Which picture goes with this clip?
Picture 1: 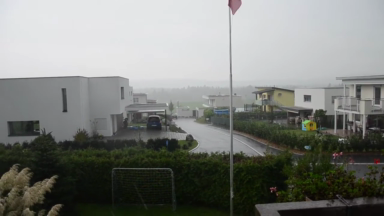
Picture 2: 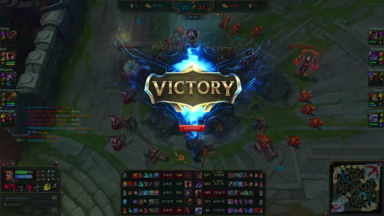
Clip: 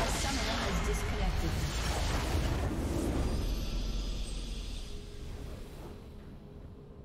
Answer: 2